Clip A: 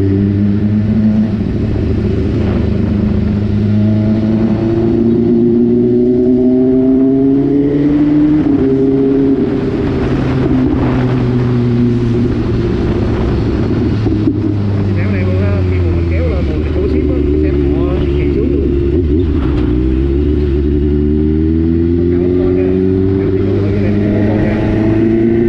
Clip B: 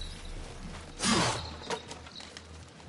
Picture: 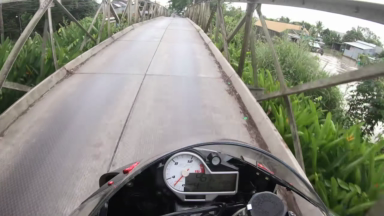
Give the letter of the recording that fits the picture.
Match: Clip A